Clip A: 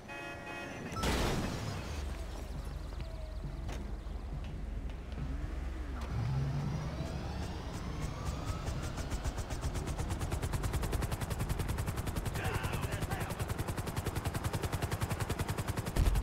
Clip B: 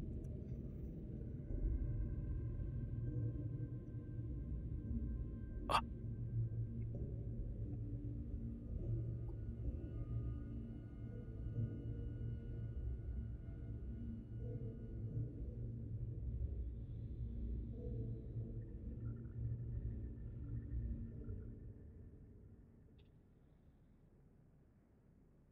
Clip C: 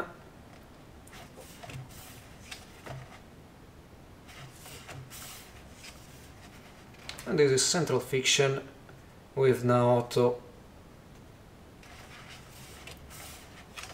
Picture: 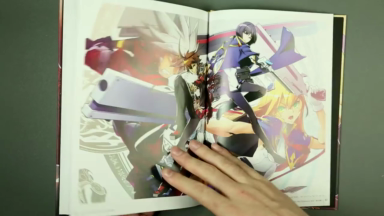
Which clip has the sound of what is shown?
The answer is C